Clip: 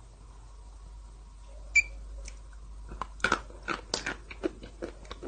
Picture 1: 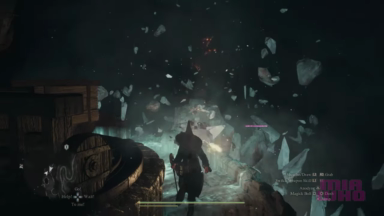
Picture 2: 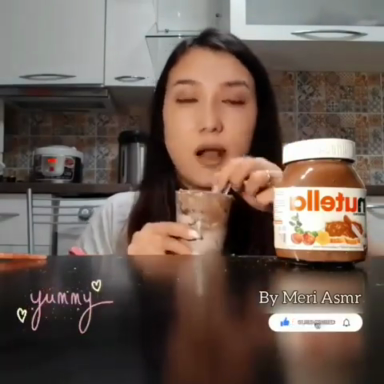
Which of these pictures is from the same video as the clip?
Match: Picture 2